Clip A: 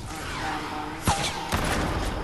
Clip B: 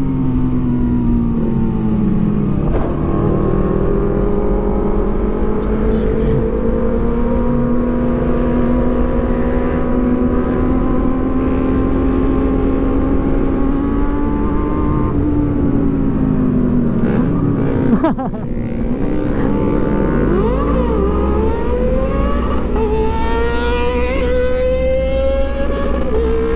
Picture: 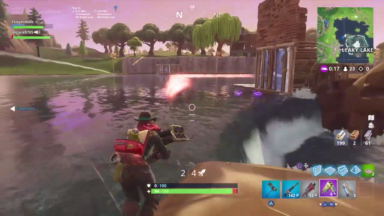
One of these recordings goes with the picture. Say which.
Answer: A